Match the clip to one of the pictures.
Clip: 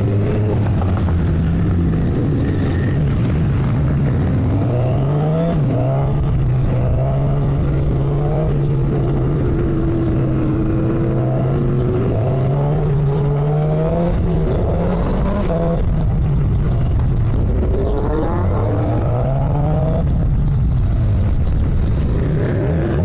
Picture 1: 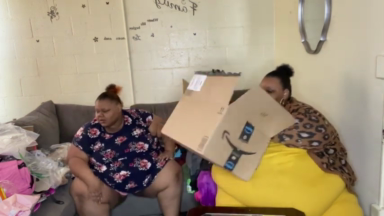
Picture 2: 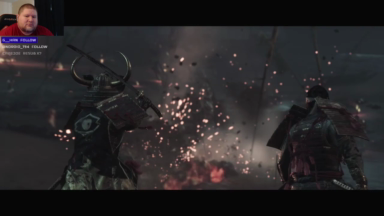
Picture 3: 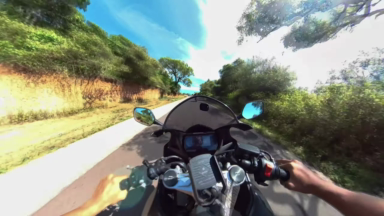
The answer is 3